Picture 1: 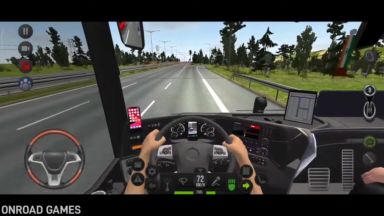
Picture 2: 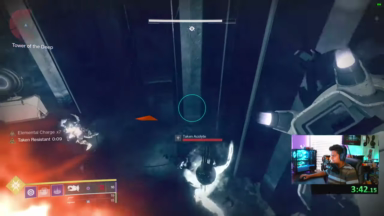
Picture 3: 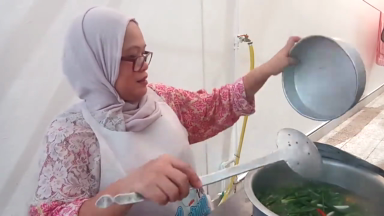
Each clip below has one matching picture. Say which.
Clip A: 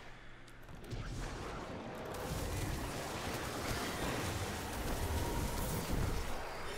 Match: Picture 2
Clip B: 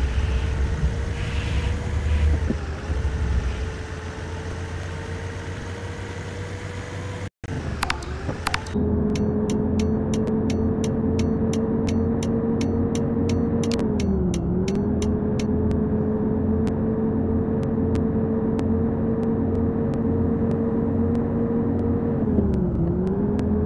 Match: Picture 1